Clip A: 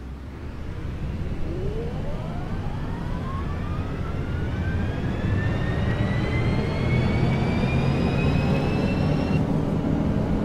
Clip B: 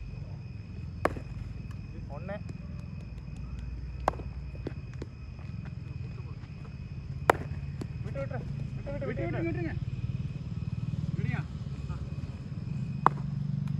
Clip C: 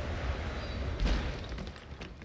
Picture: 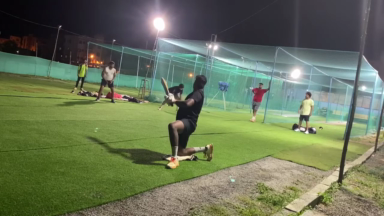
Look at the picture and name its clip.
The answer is B